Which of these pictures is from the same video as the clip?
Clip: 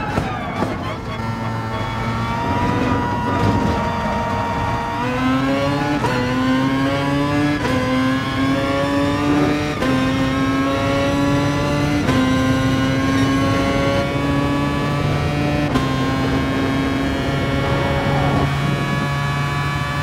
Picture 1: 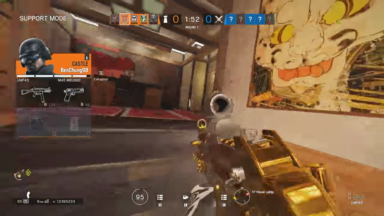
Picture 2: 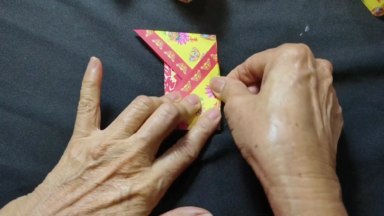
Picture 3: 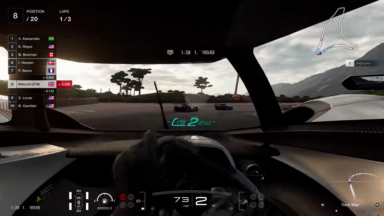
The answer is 3